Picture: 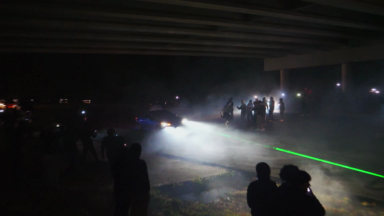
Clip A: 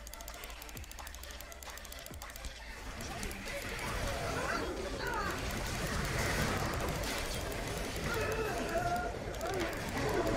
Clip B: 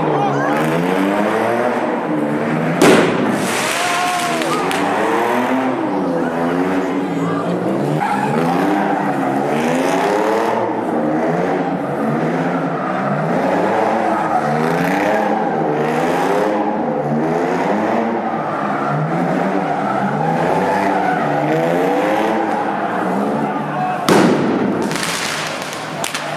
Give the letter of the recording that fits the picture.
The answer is B